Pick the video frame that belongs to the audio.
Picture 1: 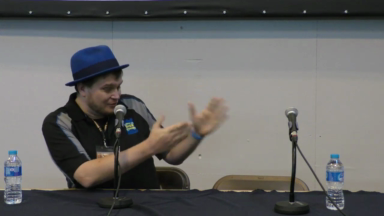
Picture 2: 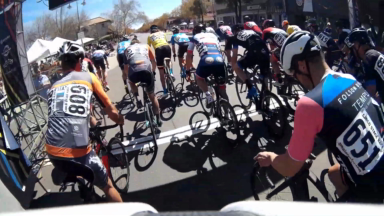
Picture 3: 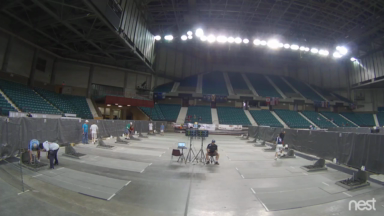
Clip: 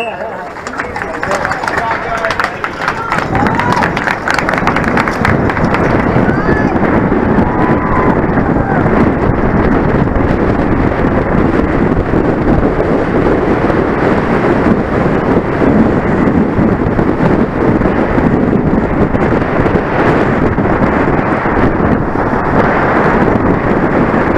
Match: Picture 2